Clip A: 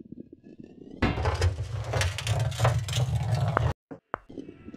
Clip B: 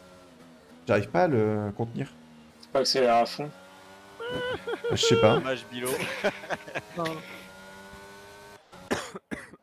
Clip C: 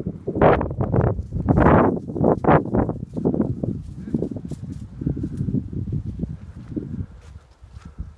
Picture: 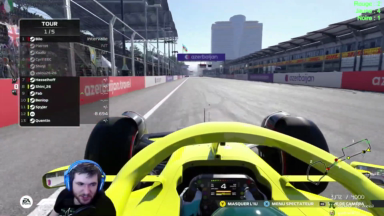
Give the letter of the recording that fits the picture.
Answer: B